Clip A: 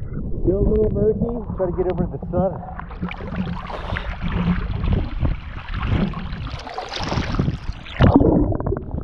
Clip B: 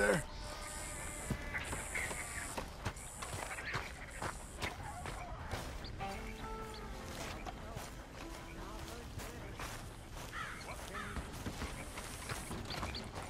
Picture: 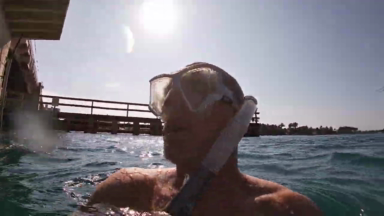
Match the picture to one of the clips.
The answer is A